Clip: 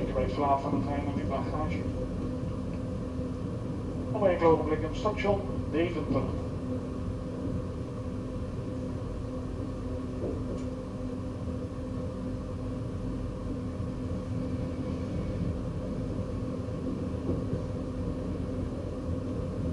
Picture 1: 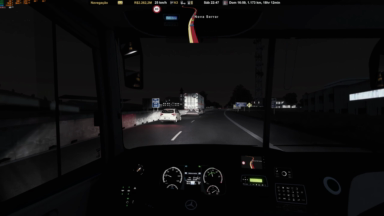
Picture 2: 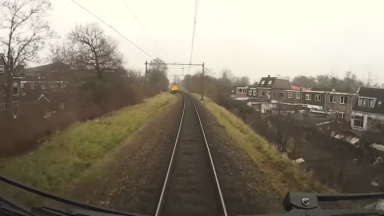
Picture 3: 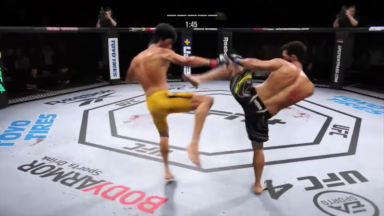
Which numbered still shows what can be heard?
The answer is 2